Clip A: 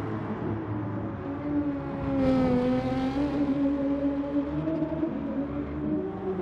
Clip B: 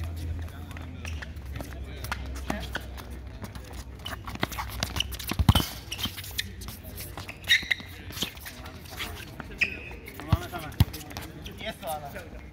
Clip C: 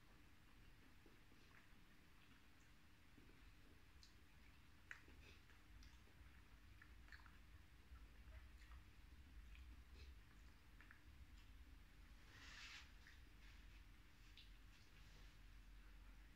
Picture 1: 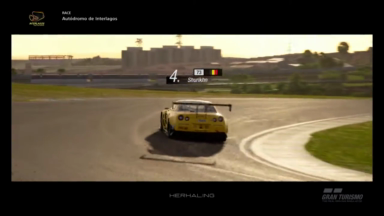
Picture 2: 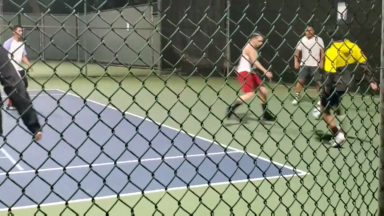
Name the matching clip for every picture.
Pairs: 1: A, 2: B